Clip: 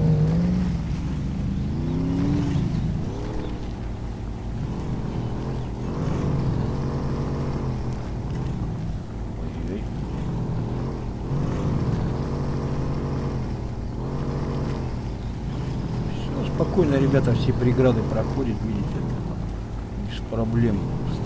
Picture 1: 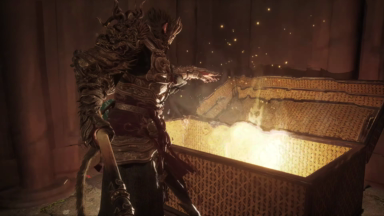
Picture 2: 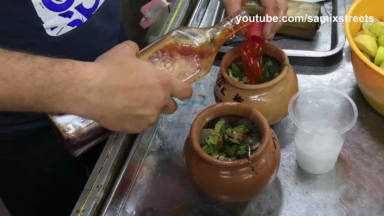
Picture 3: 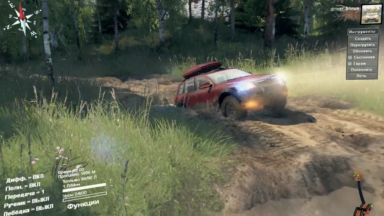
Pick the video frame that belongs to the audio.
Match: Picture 3